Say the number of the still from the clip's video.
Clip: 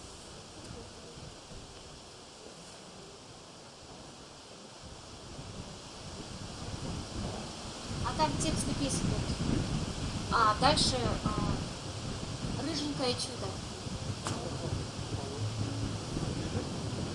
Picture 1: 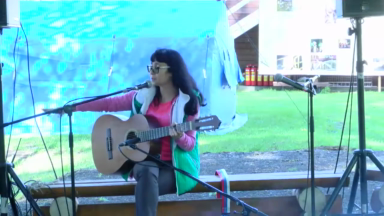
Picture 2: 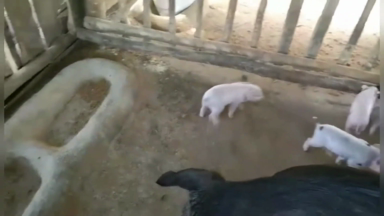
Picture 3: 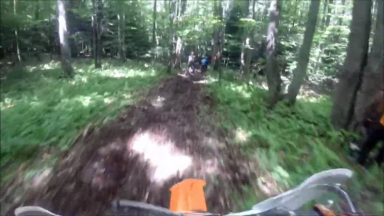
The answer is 1